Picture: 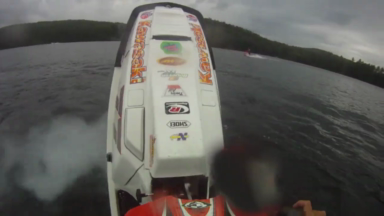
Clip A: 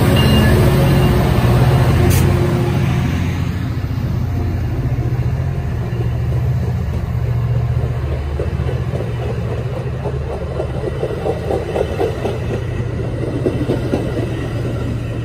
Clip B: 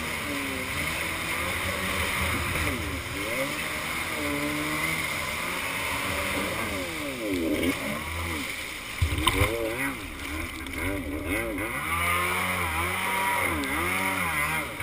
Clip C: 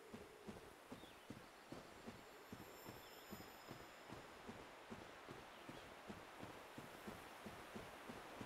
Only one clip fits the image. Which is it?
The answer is B